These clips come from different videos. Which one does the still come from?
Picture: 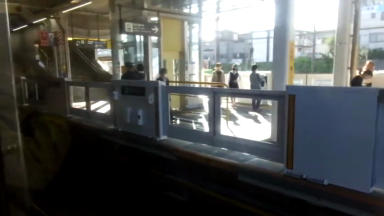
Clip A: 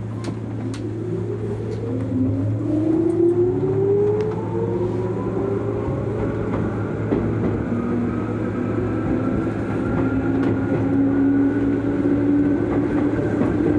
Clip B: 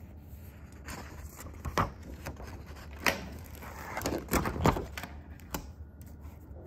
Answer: A